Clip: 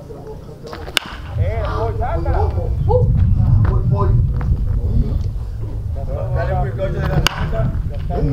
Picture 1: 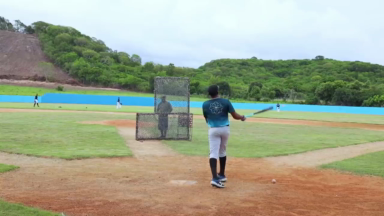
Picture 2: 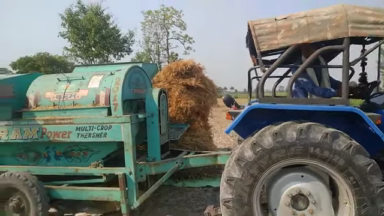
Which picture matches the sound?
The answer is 1